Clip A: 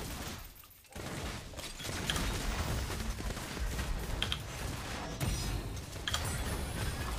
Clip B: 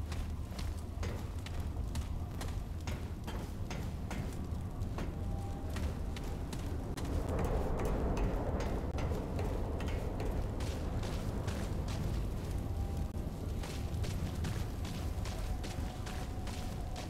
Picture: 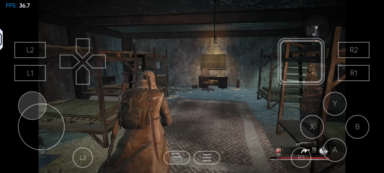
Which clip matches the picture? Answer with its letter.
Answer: B